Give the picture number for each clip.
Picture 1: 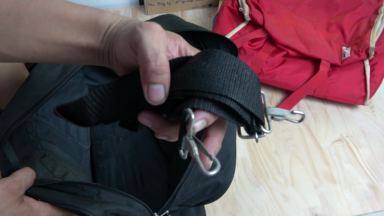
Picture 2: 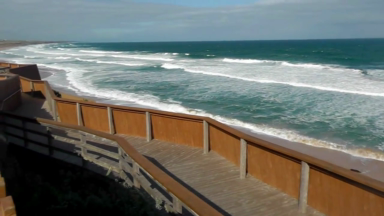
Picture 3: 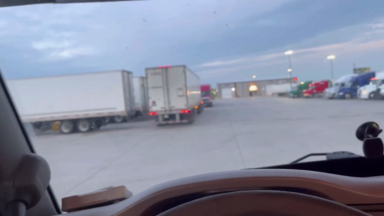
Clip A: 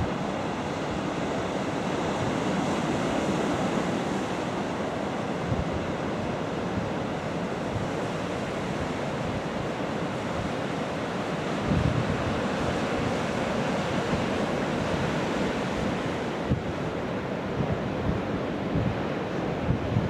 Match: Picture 2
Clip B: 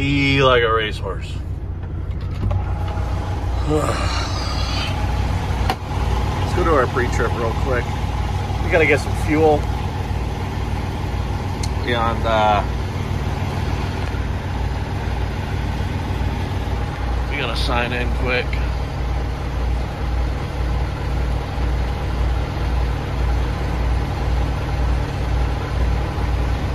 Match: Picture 3